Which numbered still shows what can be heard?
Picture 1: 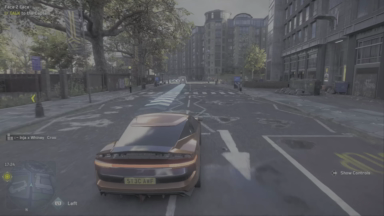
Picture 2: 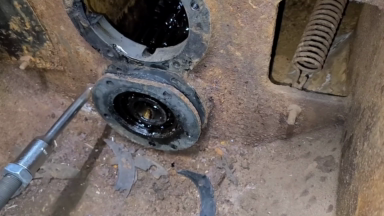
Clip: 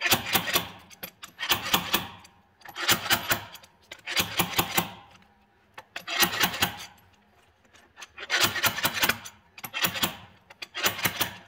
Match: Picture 2